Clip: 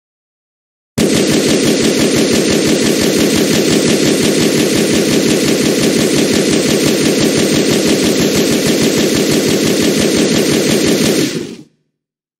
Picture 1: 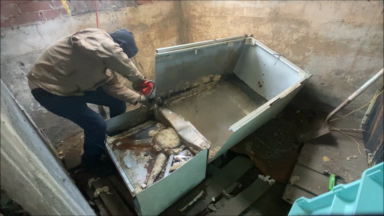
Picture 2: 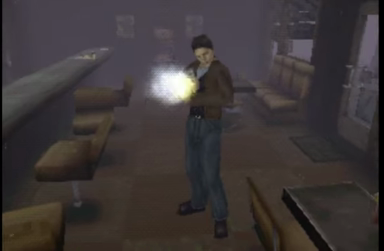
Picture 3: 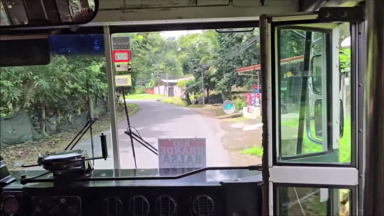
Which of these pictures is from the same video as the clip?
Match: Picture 2